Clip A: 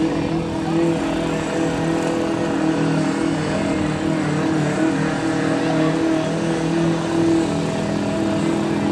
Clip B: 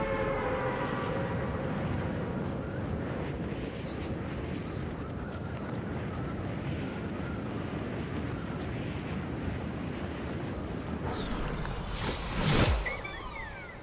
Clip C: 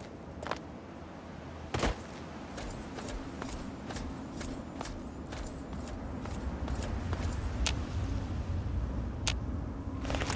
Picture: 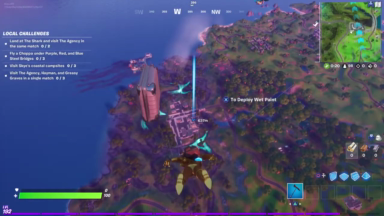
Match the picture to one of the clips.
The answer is B